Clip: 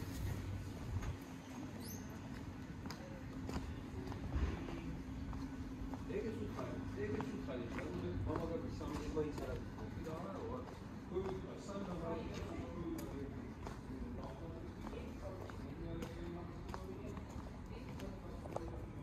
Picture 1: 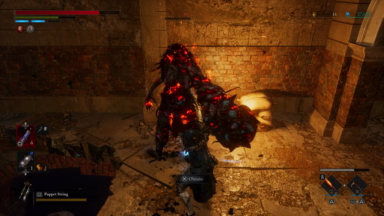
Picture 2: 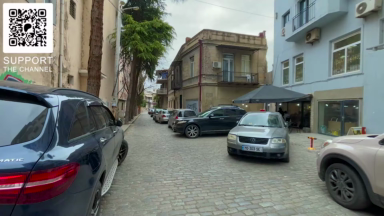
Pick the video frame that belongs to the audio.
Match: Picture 2